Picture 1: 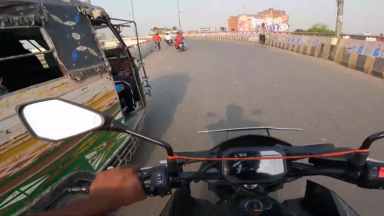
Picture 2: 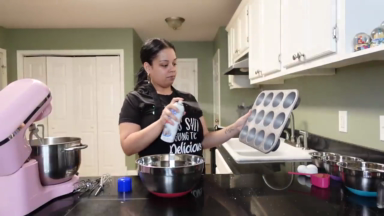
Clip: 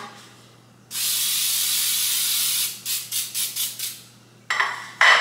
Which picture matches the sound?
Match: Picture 2